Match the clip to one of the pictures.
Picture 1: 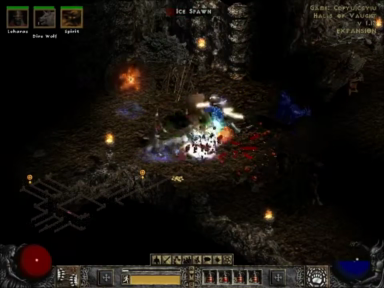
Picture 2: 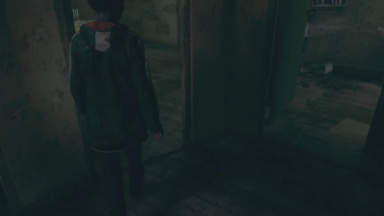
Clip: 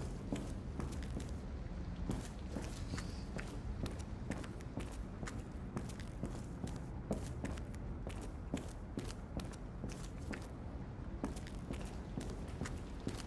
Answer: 2